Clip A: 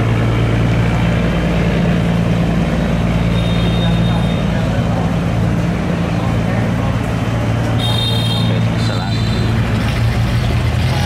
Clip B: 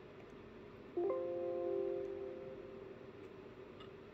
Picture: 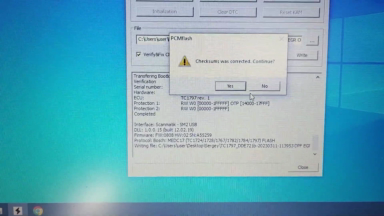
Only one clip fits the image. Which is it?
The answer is B